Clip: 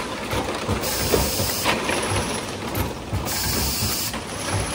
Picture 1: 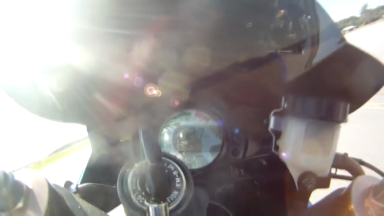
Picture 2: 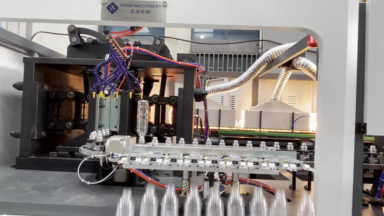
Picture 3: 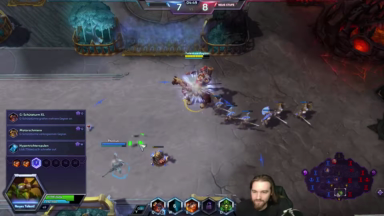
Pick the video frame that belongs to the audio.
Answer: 2